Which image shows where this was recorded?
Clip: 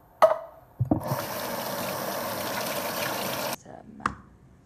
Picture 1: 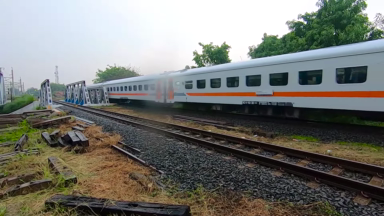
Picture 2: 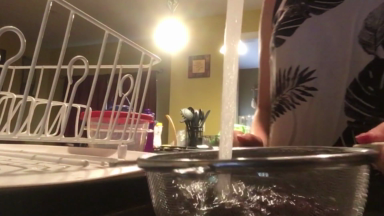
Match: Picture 2